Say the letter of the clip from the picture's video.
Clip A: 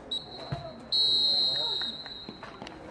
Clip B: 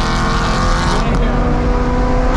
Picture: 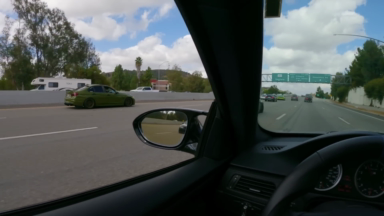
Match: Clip B